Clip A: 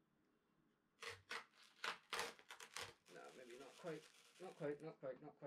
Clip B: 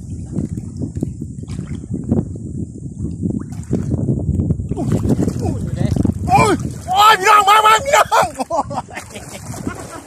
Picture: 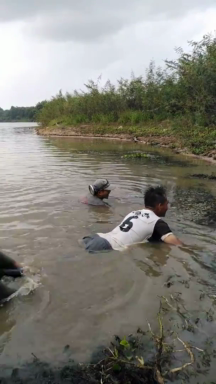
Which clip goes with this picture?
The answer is B